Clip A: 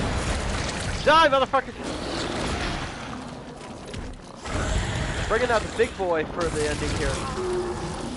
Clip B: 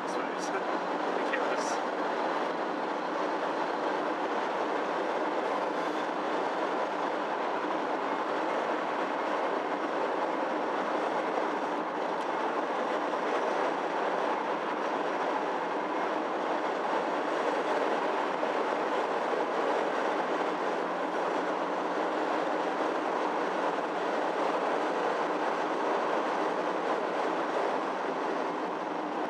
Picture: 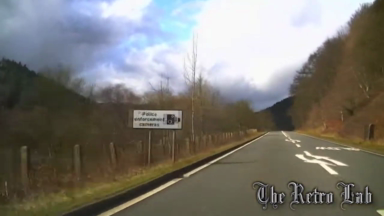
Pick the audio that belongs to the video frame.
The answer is B